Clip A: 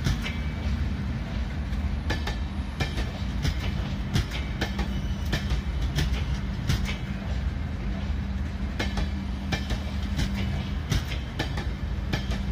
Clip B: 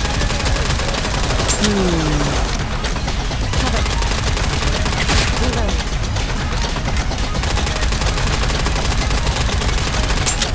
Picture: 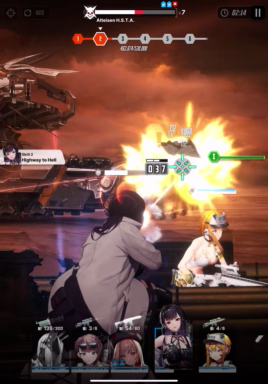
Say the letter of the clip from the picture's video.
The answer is B